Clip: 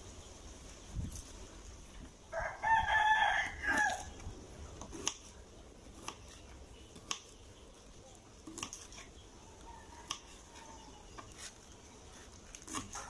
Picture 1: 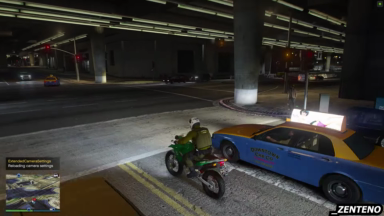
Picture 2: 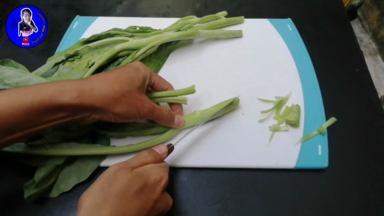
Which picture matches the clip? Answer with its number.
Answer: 2